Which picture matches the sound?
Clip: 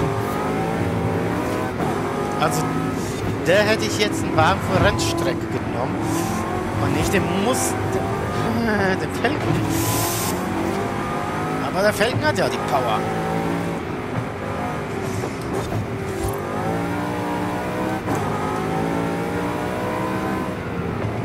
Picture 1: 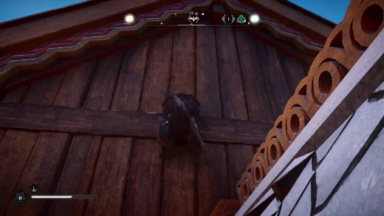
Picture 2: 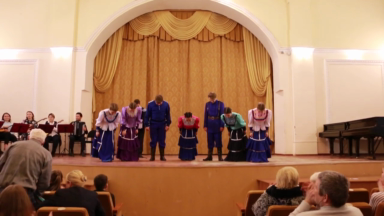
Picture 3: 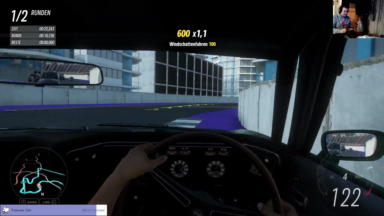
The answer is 3